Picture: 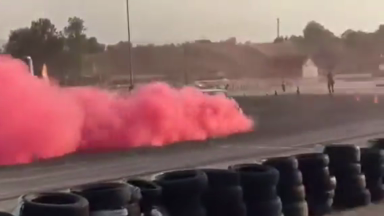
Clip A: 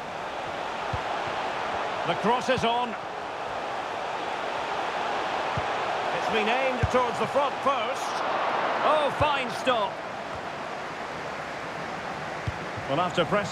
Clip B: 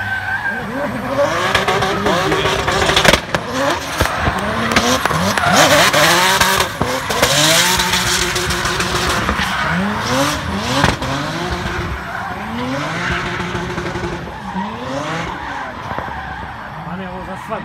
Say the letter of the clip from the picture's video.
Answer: B